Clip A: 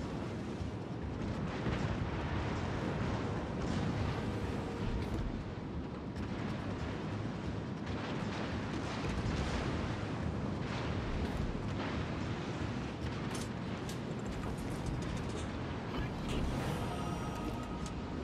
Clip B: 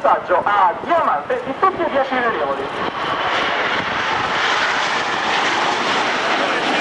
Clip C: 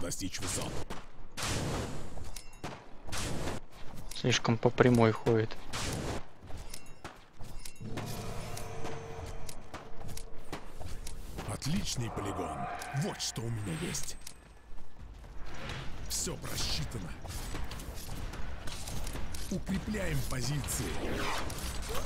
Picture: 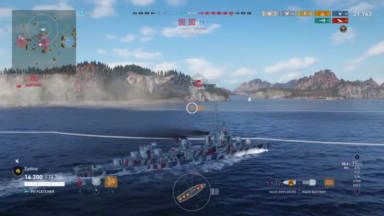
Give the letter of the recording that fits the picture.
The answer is A